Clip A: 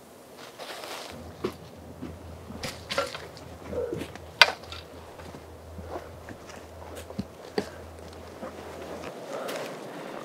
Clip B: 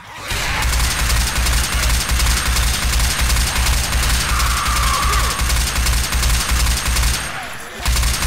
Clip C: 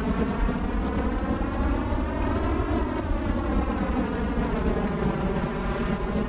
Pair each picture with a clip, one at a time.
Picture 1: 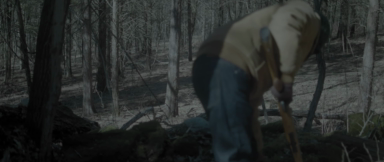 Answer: A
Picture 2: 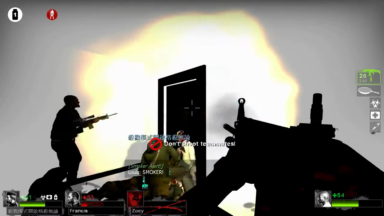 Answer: B